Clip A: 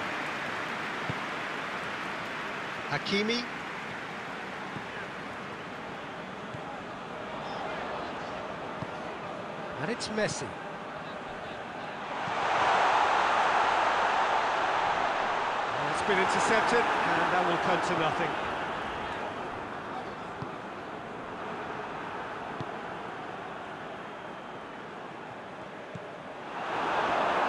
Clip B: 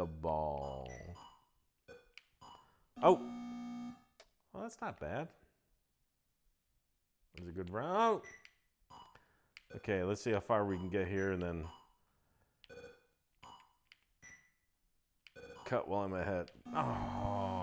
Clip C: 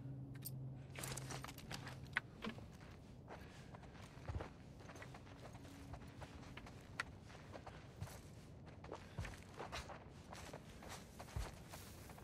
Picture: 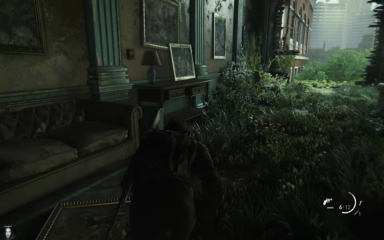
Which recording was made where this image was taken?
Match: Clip C